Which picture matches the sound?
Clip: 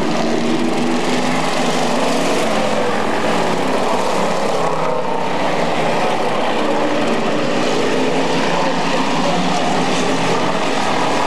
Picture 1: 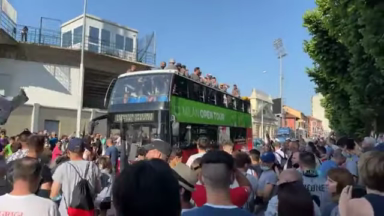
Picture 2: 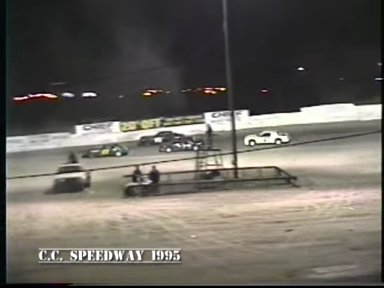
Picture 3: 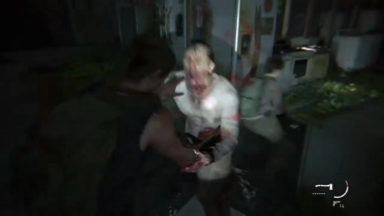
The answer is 2